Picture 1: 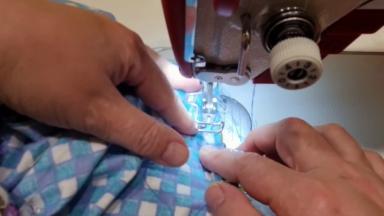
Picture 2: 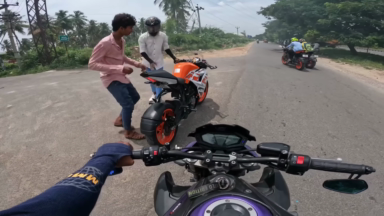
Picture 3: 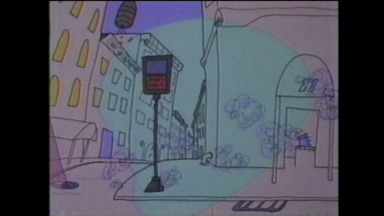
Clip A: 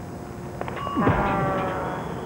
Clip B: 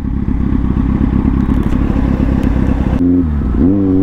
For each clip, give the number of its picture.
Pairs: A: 3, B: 2